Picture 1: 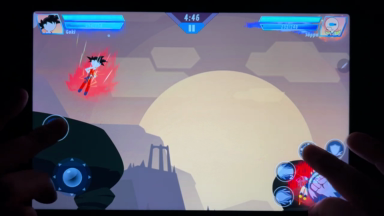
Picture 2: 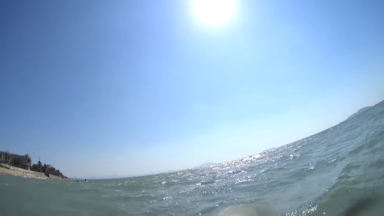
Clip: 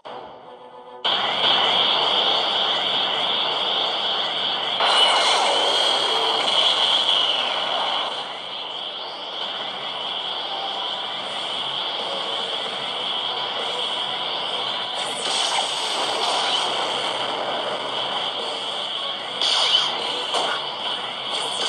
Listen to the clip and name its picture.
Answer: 1